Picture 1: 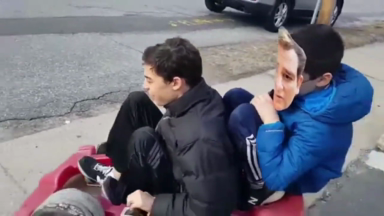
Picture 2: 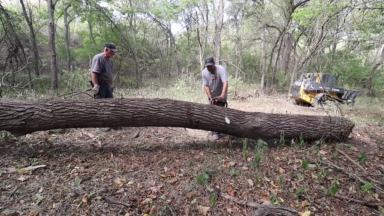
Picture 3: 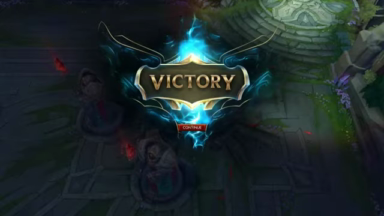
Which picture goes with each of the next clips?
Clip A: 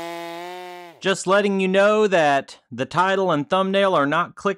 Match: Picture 2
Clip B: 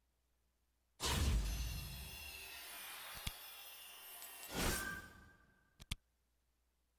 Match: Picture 3